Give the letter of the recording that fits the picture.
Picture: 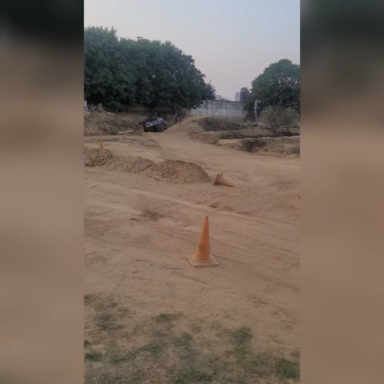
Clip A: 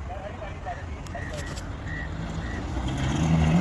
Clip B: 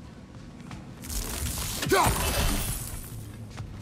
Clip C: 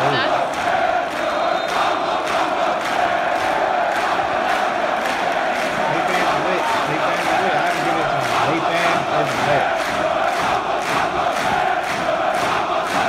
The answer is A